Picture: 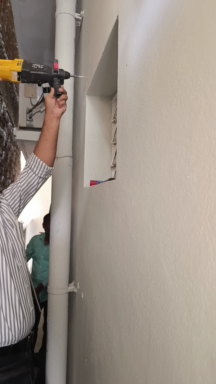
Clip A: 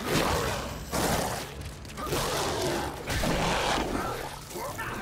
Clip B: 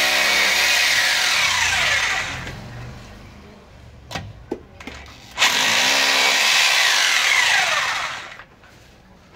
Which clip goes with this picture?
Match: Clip B